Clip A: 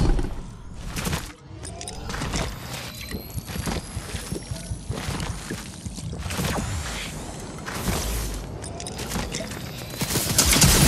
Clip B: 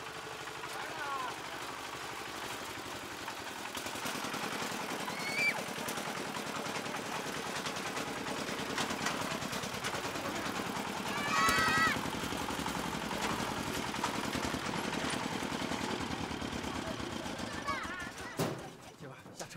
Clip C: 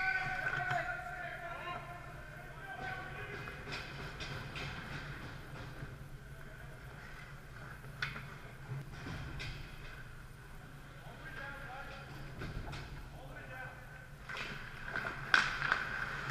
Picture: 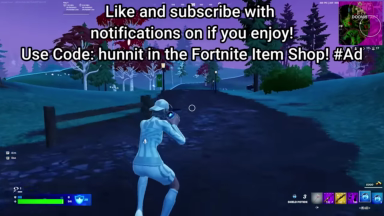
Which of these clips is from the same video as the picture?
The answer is A